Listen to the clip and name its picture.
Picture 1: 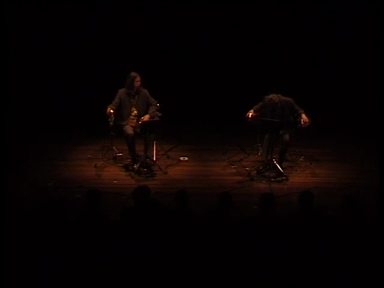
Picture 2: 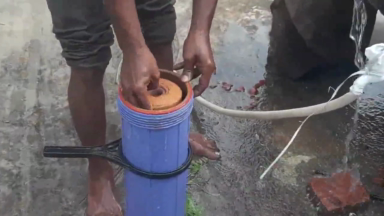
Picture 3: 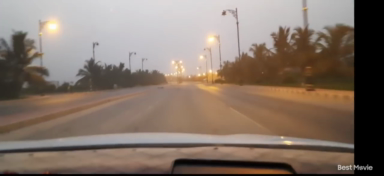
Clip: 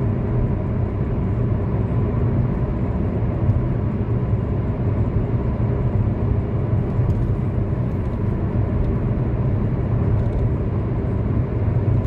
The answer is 3